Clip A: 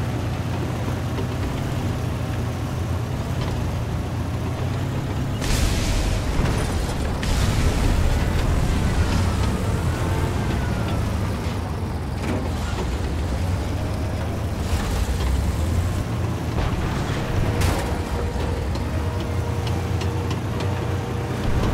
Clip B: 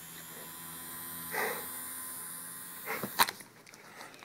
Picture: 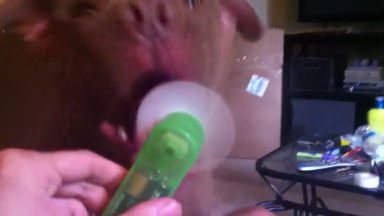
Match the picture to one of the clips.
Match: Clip B